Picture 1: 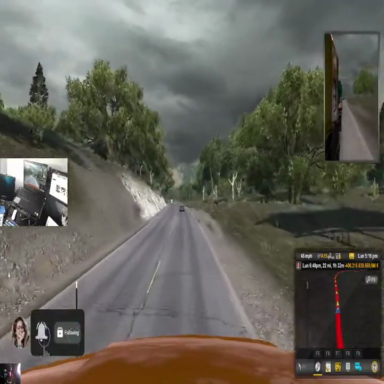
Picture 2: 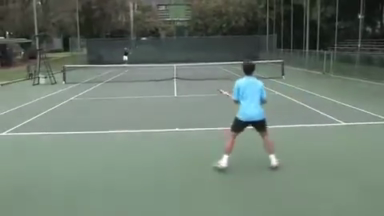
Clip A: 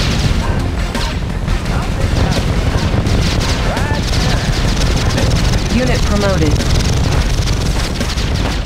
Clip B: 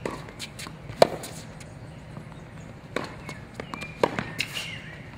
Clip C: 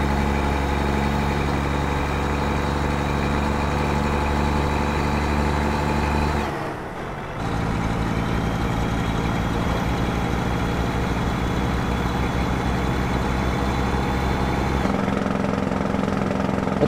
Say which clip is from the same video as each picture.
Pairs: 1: C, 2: B